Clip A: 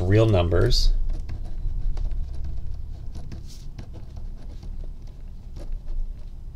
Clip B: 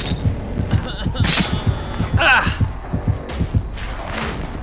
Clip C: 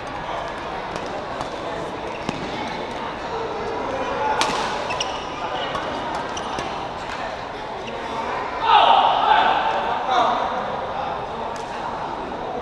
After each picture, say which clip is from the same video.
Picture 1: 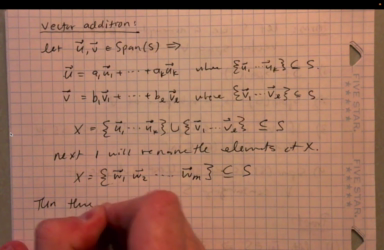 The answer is A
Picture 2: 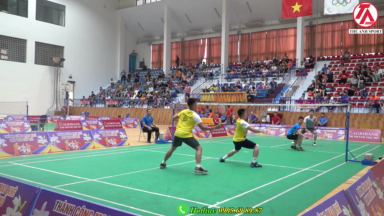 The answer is C